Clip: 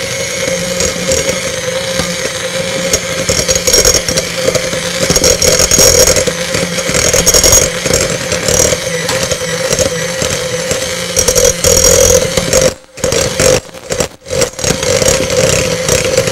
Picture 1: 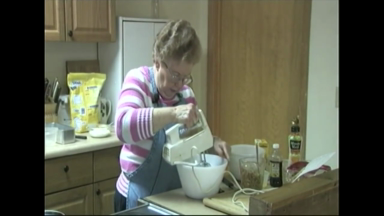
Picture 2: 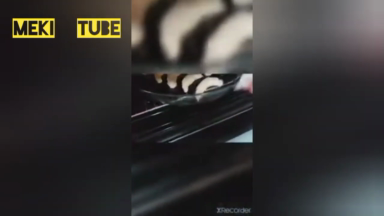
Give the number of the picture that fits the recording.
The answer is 1